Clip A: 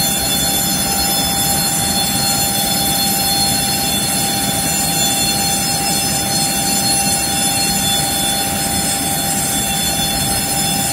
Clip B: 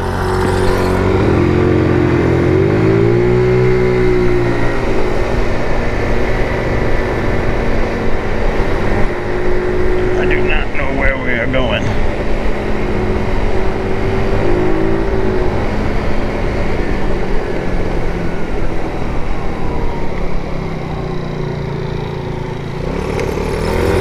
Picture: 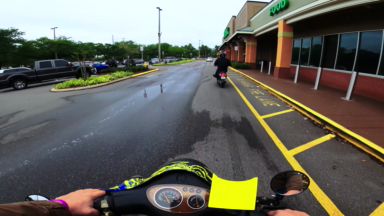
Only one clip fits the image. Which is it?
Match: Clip B